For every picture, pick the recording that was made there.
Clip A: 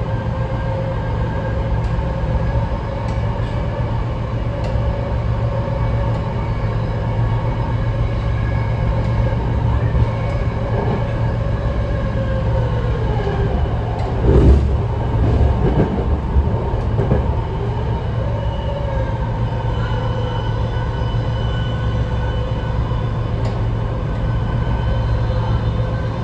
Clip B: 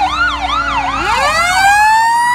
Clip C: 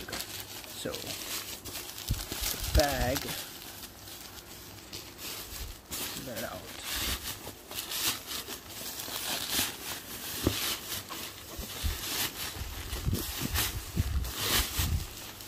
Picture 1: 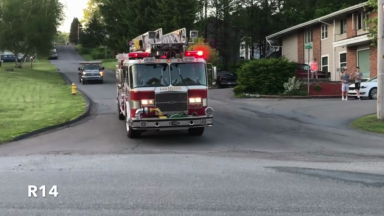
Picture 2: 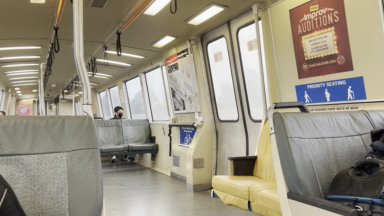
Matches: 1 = B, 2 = A